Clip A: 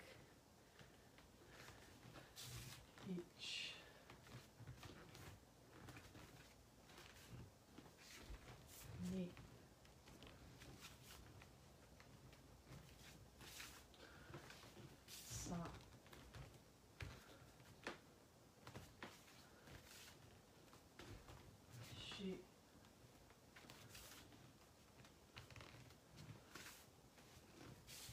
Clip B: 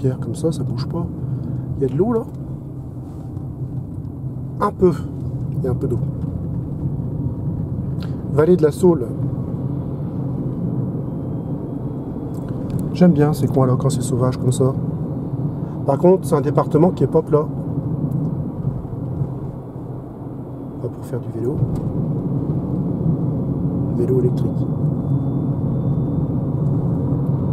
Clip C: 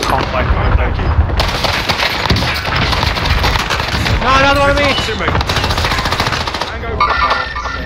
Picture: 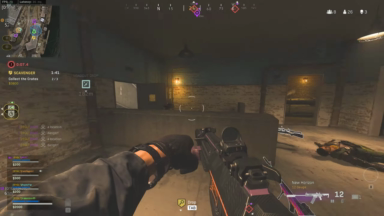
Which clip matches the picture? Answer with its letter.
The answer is C